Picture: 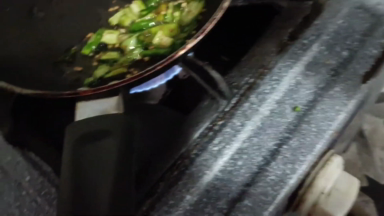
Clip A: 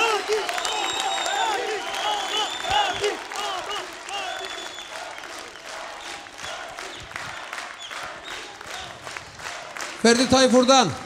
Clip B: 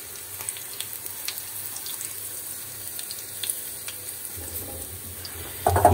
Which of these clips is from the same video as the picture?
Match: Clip B